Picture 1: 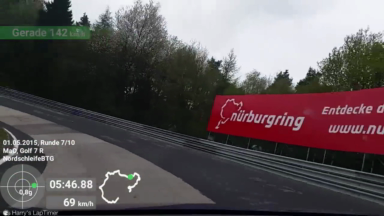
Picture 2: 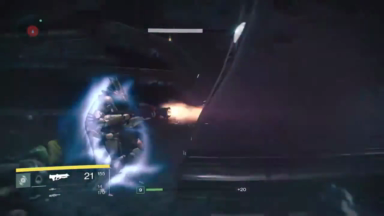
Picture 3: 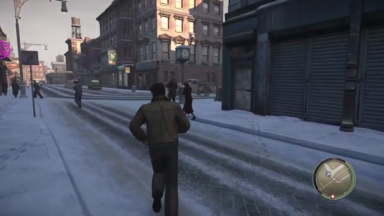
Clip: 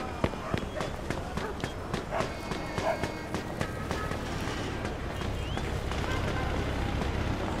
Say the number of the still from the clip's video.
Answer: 3